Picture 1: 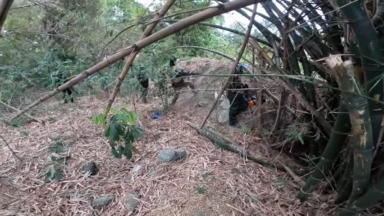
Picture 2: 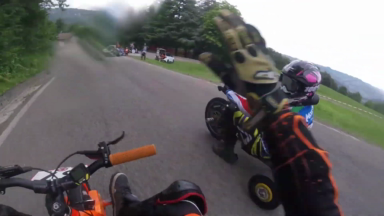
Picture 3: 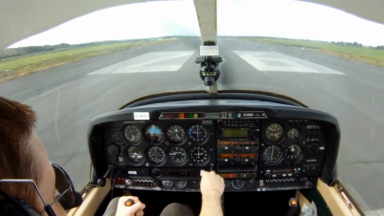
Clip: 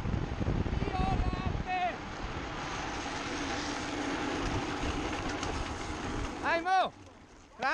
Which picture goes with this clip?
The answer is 2